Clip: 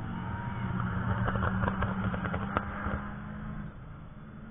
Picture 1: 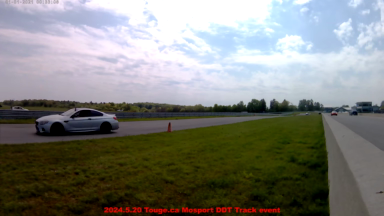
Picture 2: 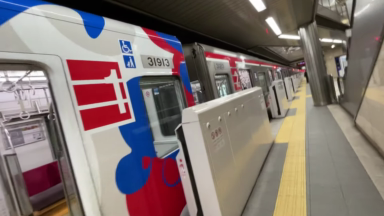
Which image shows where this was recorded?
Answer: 1